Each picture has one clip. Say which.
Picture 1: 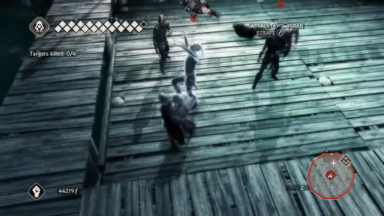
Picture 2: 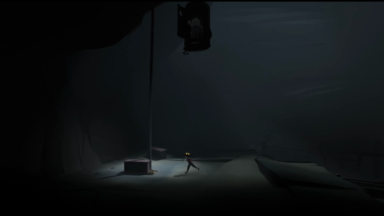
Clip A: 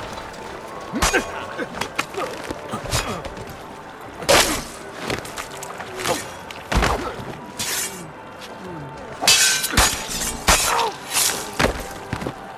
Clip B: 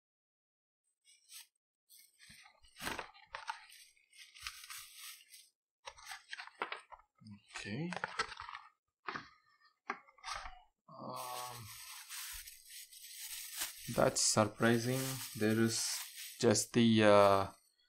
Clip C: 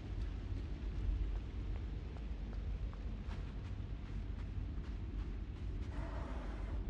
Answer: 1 A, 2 C